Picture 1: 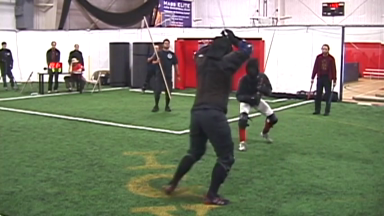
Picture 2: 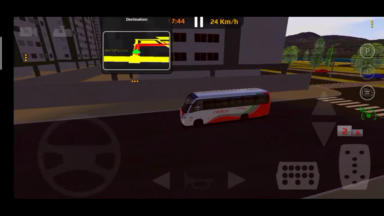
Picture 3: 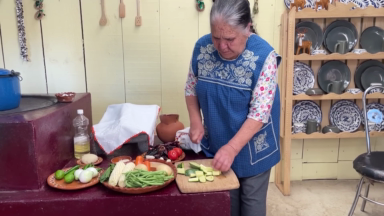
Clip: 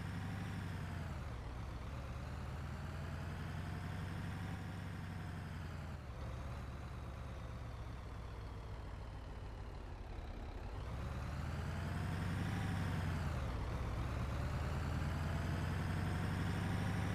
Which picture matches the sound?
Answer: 2